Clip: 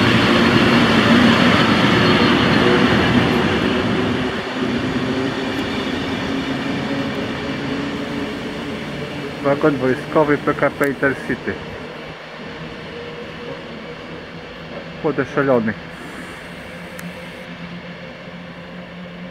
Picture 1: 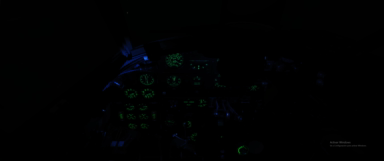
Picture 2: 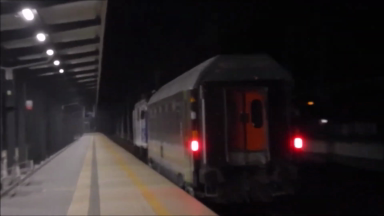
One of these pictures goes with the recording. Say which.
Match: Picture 2